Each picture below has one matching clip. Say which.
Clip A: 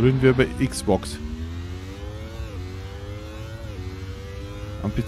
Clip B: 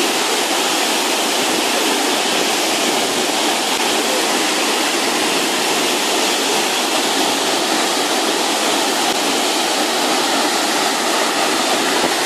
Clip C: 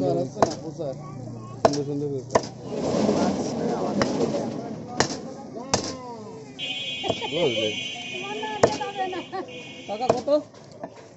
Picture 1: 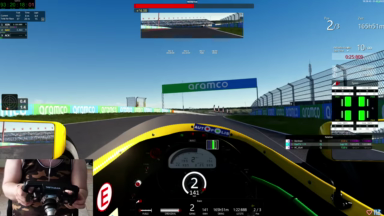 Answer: A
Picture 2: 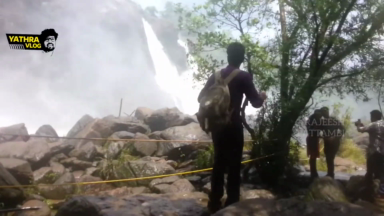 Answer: B